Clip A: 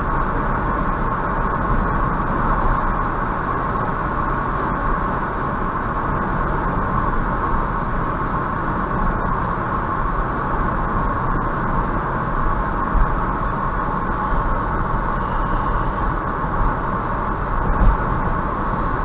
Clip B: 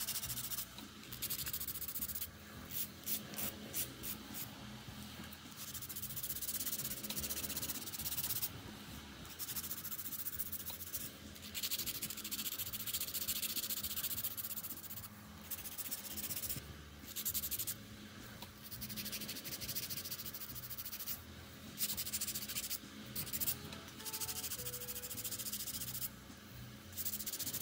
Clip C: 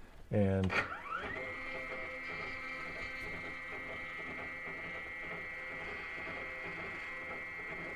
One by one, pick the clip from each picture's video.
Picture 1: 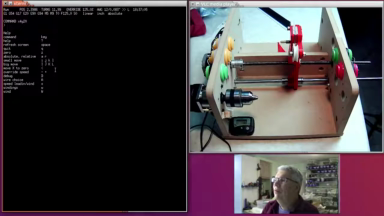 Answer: C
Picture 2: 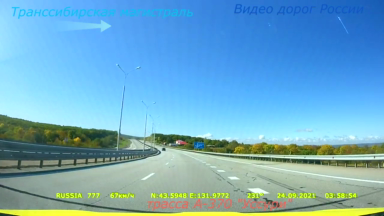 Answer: A